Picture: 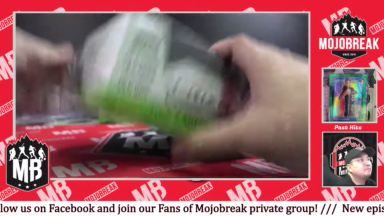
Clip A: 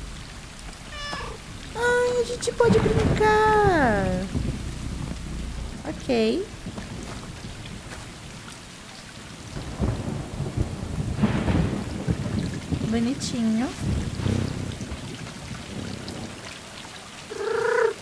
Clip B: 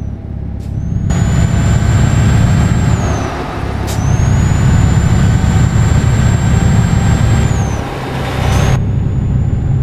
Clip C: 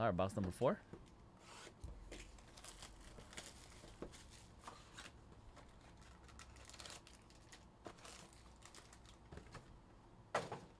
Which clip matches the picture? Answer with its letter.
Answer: C